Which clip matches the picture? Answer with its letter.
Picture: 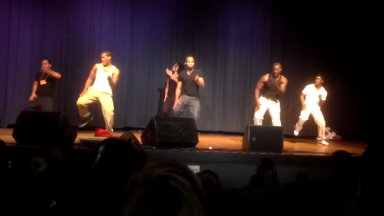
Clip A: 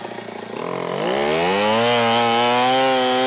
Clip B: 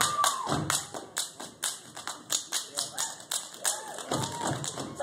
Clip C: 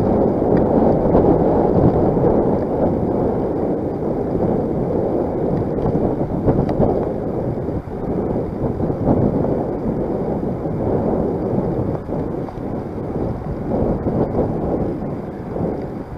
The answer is B